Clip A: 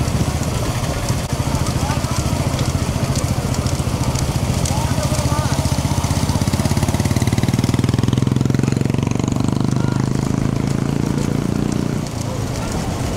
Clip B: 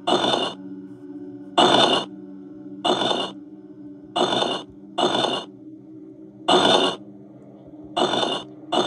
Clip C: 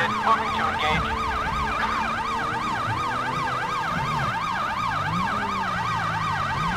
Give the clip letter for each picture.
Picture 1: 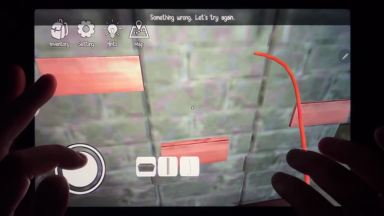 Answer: B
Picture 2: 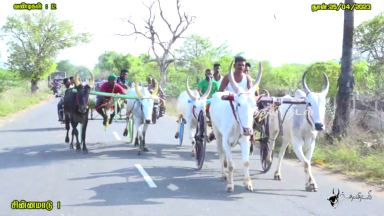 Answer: A